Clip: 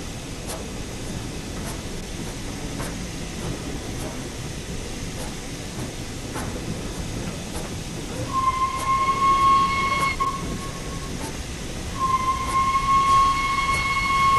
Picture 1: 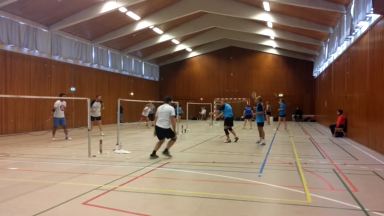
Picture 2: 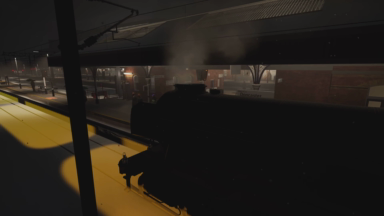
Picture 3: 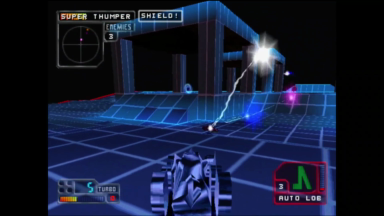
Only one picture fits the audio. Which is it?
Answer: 2